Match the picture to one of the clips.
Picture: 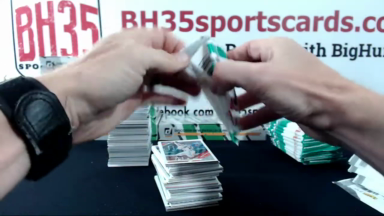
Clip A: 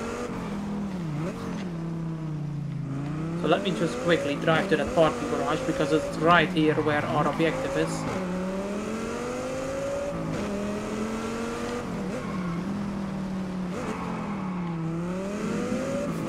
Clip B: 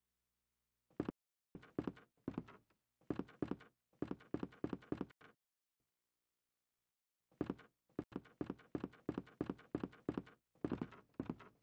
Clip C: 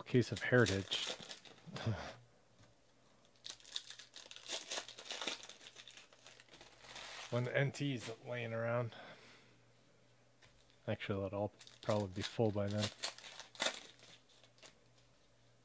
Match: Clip C